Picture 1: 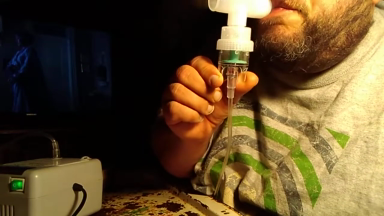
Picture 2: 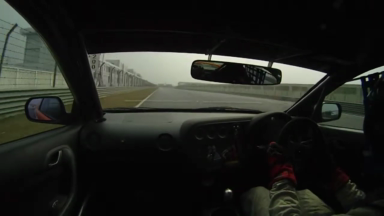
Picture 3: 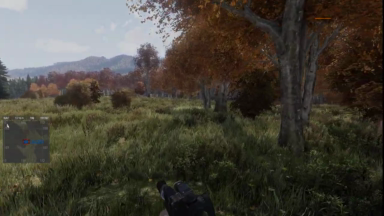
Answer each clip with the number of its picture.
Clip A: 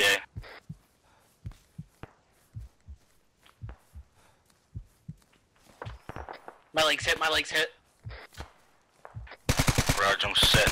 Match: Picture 3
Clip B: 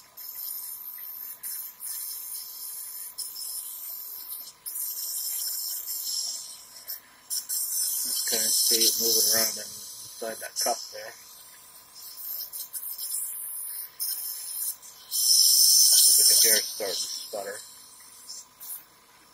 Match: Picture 1